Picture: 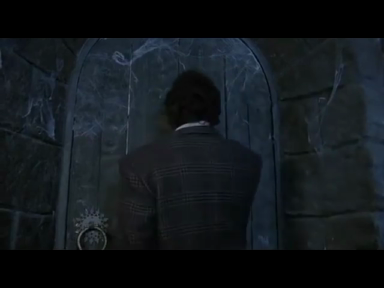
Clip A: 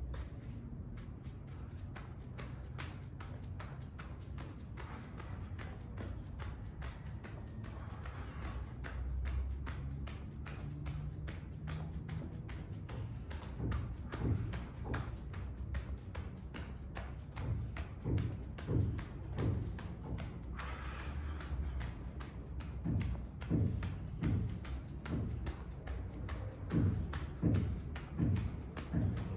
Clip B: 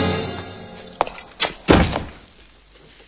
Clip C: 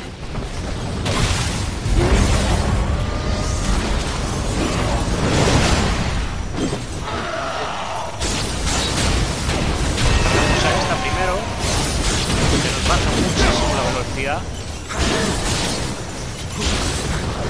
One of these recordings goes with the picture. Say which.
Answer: B